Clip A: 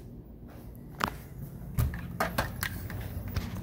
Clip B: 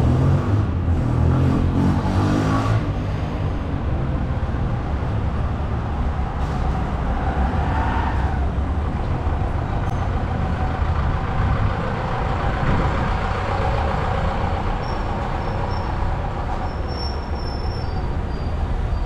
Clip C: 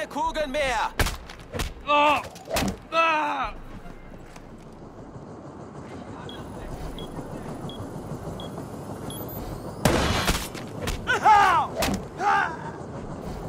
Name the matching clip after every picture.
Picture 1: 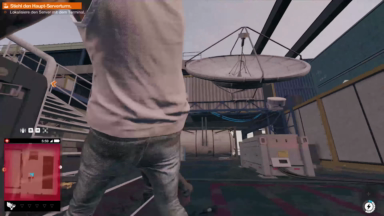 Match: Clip C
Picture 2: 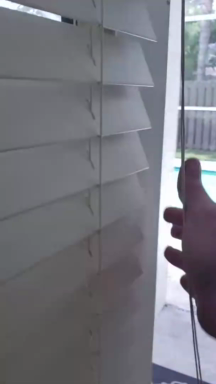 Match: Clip A